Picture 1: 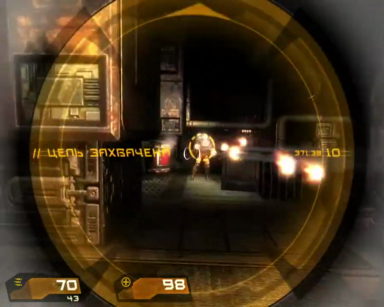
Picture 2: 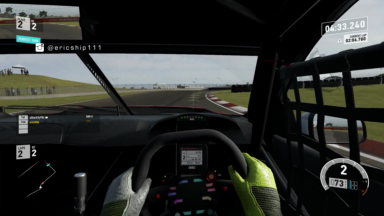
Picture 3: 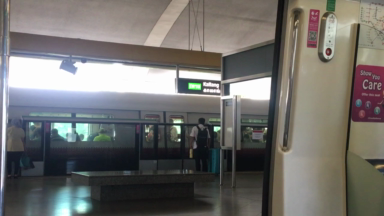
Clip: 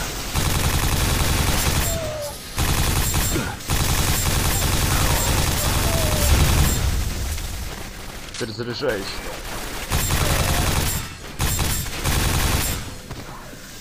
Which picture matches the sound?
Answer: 1